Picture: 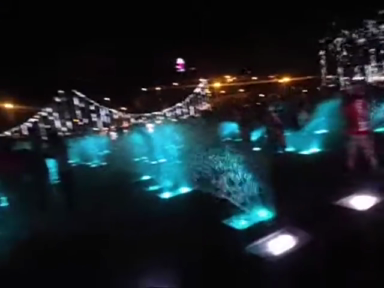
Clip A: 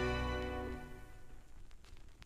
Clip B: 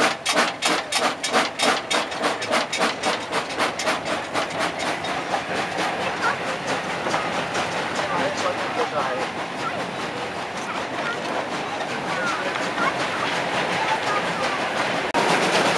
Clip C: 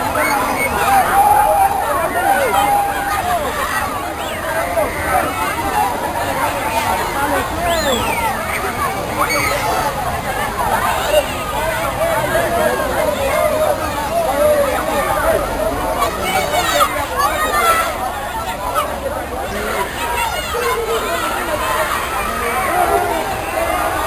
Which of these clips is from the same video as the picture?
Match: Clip C